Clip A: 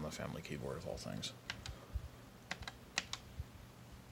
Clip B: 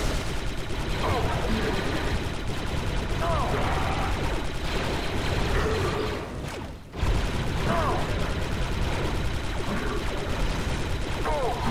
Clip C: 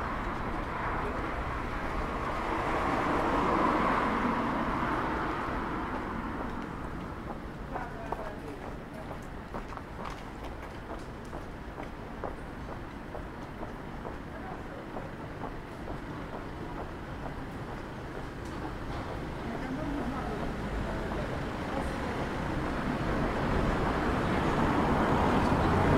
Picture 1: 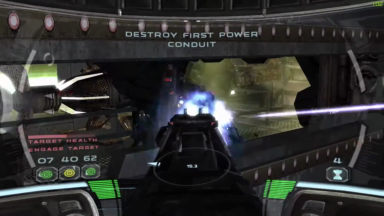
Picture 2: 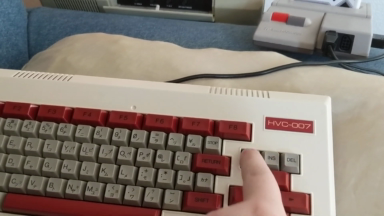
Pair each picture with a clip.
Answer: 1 B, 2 A